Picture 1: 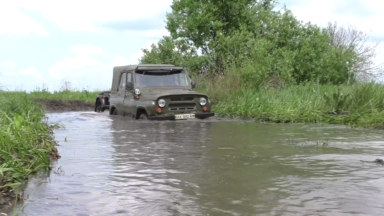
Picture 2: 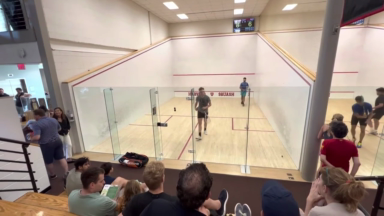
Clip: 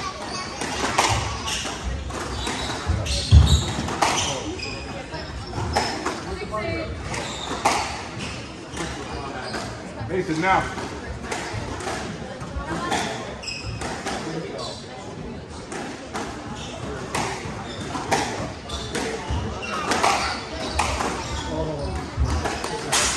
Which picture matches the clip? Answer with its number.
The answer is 2